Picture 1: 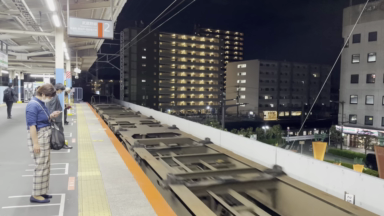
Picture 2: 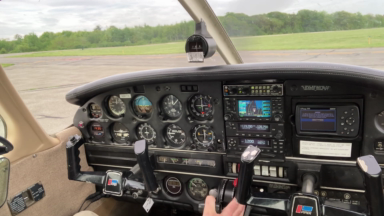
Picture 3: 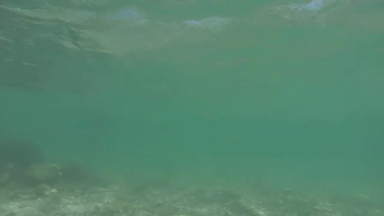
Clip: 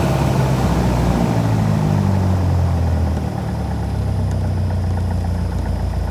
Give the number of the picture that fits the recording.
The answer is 2